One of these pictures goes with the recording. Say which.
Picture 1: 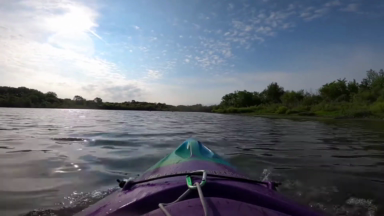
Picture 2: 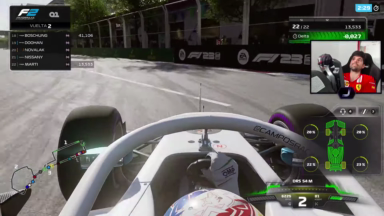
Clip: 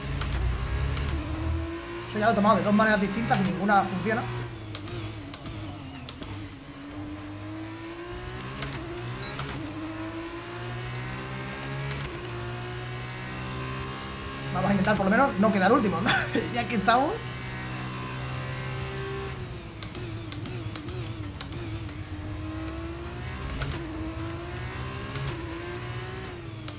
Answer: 2